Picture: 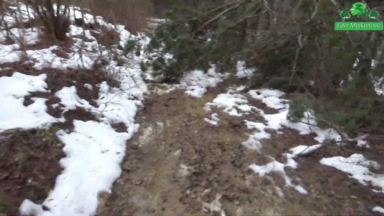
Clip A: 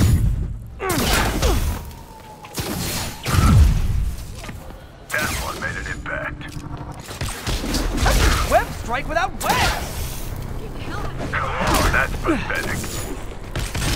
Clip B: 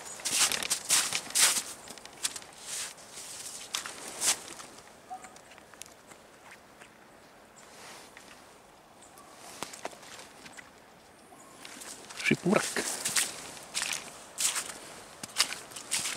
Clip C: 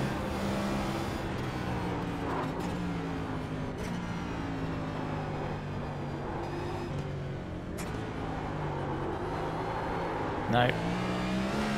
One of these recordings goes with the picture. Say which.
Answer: B